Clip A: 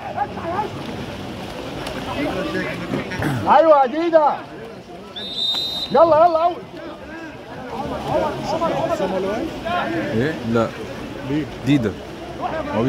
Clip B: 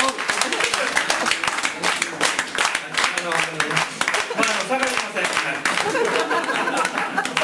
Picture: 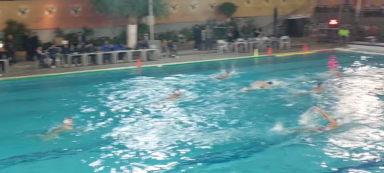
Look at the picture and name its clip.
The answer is A